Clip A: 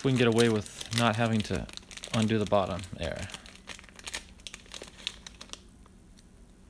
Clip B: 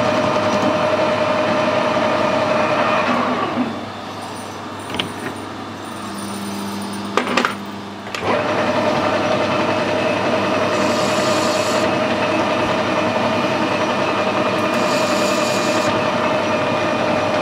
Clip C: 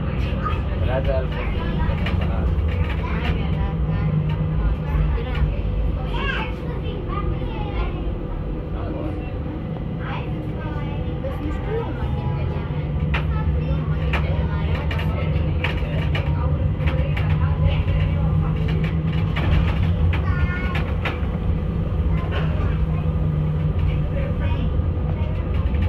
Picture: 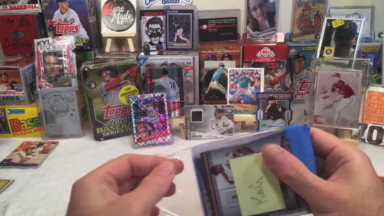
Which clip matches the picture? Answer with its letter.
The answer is A